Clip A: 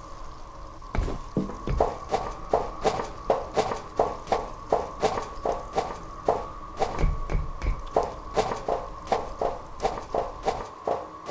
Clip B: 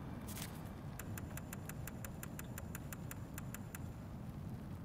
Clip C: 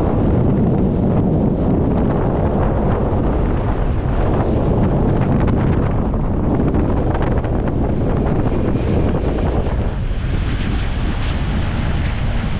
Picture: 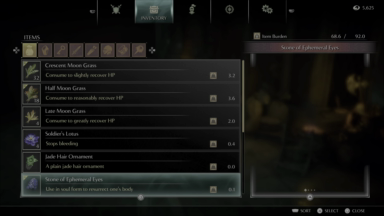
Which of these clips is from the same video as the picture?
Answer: B